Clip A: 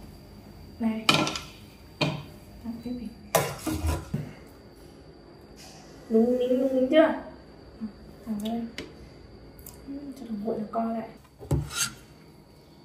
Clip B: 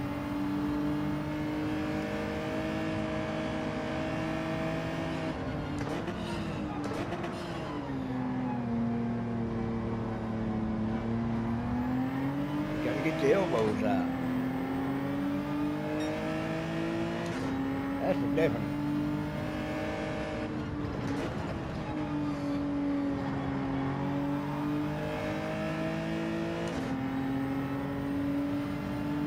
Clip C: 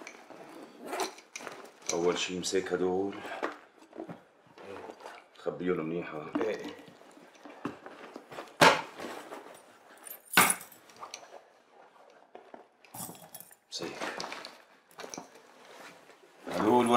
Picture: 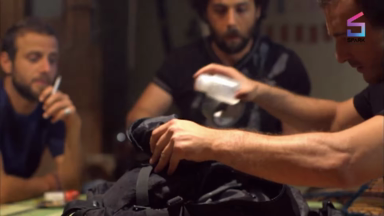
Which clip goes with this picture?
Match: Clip C